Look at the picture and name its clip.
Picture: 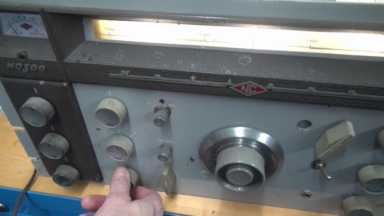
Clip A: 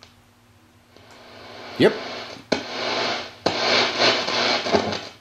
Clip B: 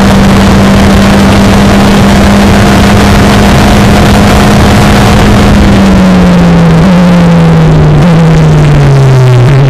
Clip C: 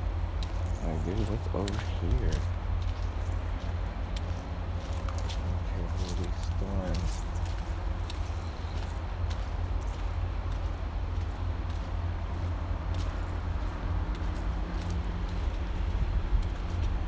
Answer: A